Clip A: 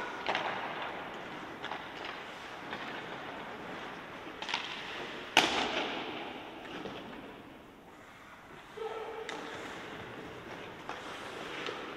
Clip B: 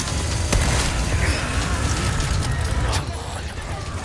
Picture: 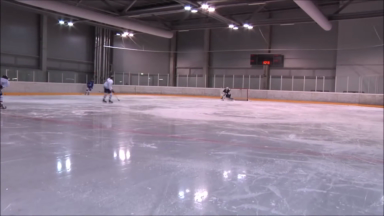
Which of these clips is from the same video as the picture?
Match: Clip A